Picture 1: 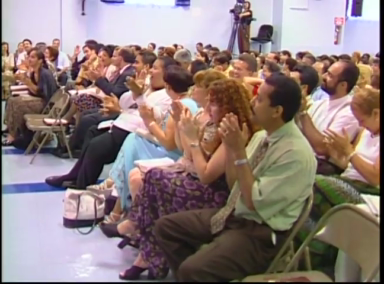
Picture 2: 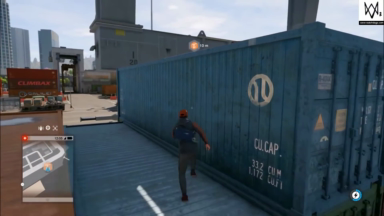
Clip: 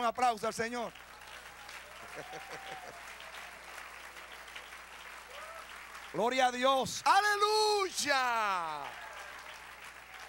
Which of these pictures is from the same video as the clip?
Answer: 1